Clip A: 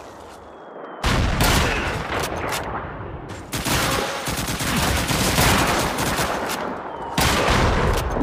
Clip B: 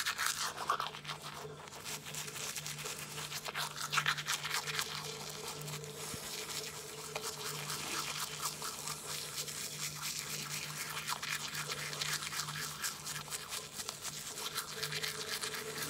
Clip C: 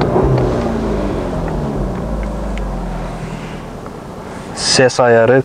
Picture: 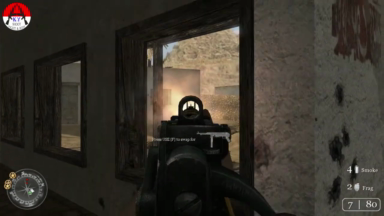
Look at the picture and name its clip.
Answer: A